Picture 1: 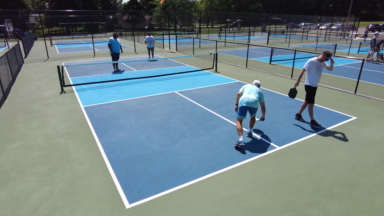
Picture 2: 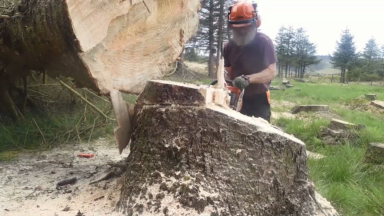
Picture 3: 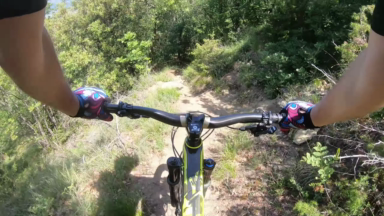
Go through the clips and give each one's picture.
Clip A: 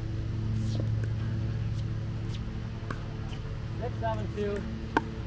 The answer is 1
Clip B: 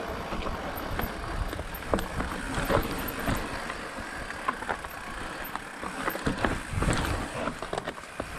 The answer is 3